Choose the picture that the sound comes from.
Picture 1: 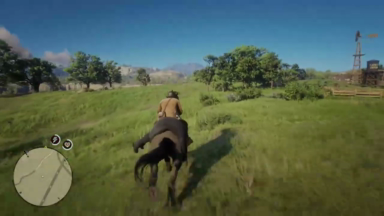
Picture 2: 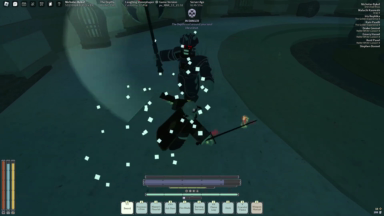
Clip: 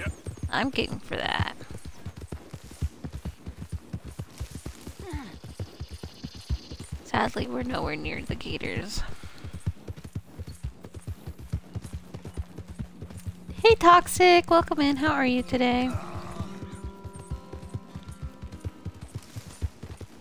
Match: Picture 1